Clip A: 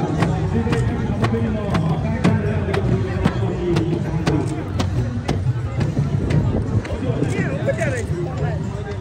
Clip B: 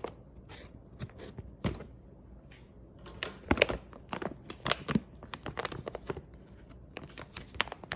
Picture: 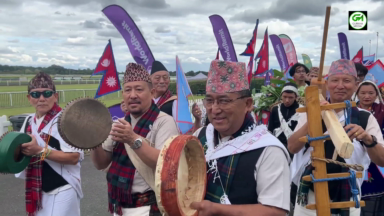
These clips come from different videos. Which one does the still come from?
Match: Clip A